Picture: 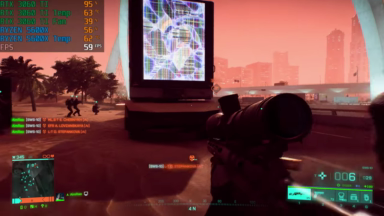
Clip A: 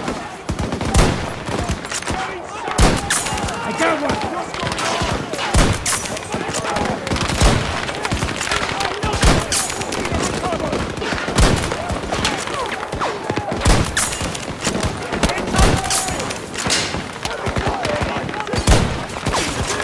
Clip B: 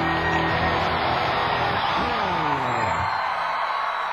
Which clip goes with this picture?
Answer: A